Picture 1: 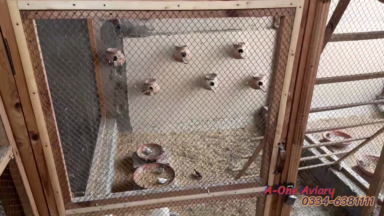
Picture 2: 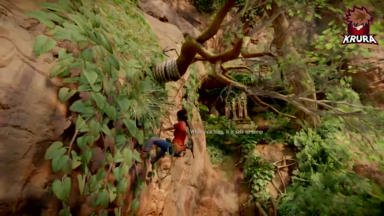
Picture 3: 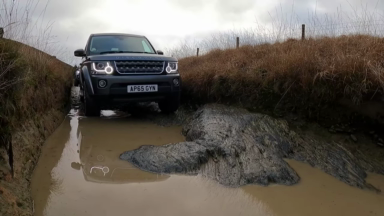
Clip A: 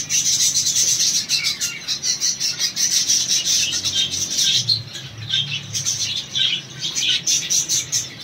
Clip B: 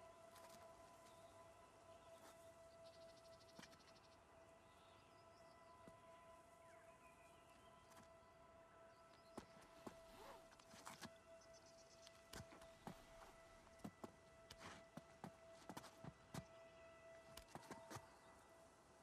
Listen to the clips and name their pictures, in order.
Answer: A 1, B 2